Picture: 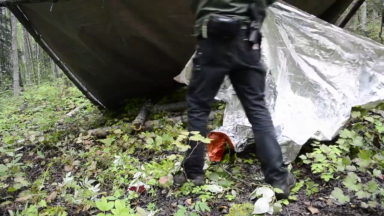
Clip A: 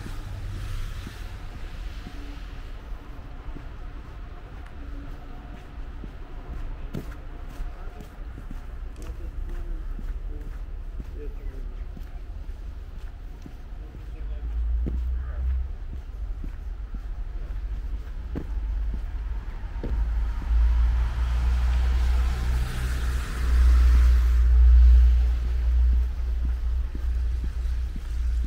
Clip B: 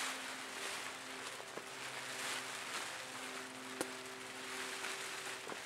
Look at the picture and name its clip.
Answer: B